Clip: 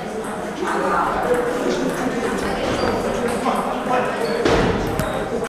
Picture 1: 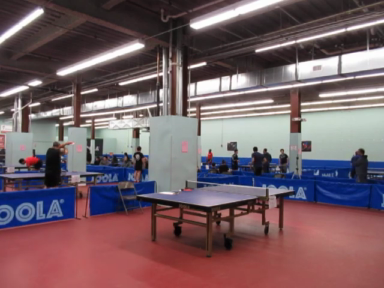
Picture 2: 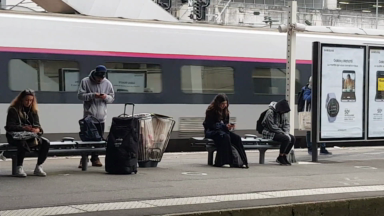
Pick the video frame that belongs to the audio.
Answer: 1